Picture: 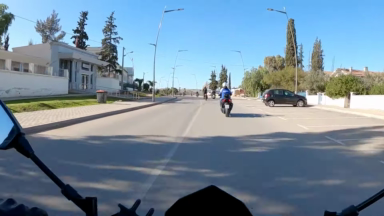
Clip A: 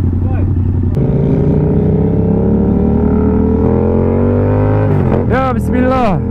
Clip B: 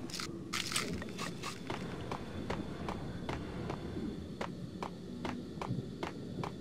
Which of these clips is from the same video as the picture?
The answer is A